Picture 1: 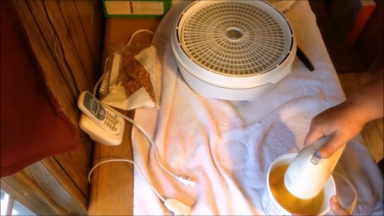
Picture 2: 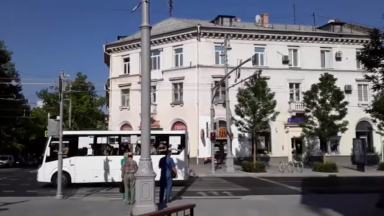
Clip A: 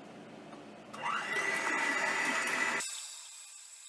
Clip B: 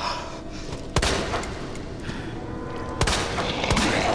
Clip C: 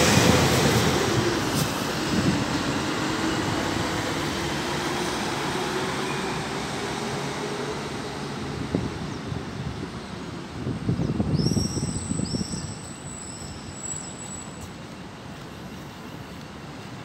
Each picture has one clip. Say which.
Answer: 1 A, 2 C